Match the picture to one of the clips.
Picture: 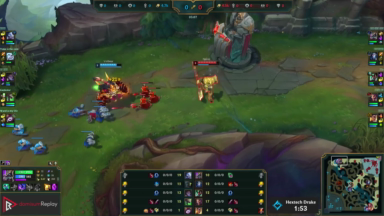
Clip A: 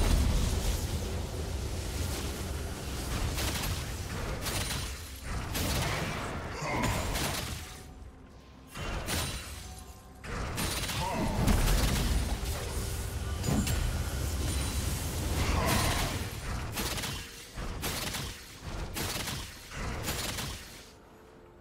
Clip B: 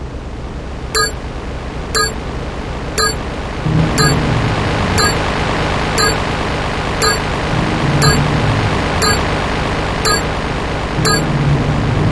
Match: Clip A